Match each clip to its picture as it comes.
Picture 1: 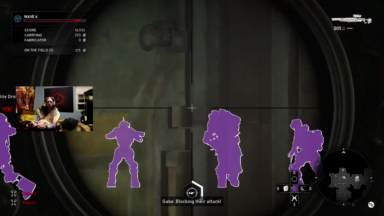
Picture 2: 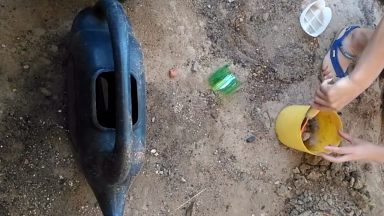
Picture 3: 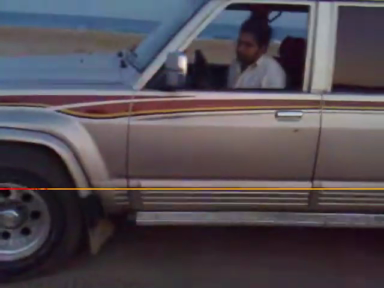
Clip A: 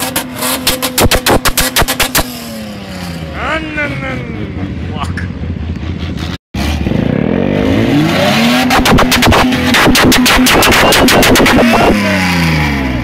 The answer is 3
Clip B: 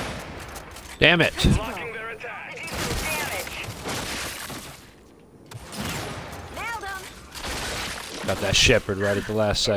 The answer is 1